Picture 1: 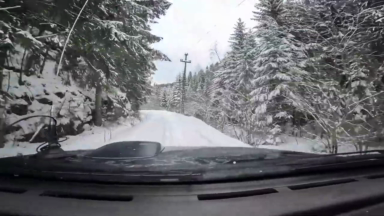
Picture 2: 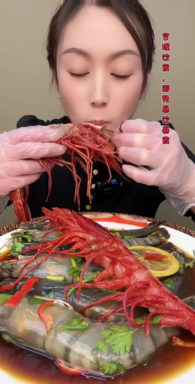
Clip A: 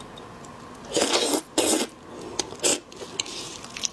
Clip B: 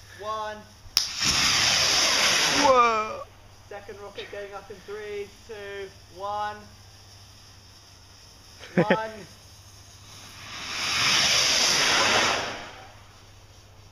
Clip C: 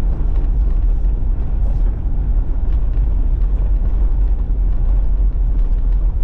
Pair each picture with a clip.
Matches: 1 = C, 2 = A